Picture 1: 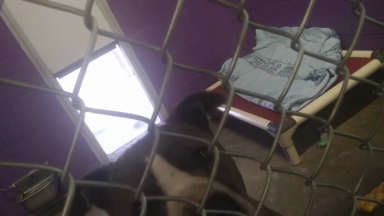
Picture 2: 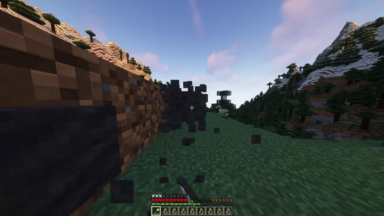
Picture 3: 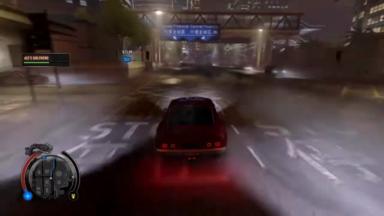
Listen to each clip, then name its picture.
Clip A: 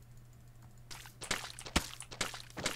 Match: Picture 2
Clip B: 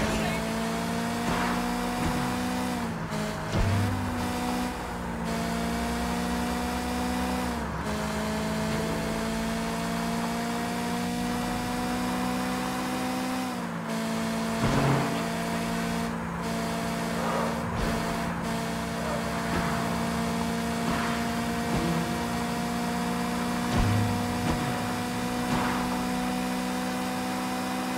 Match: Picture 3